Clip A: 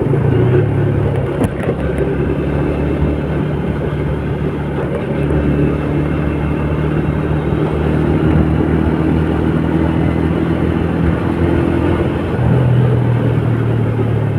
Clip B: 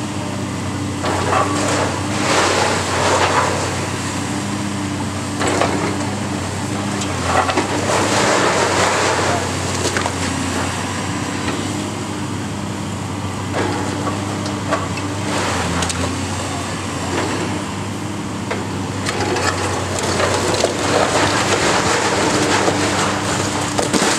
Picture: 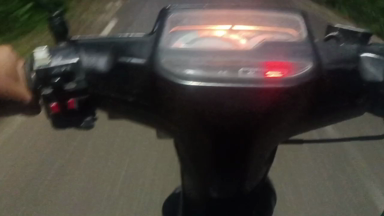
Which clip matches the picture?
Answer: A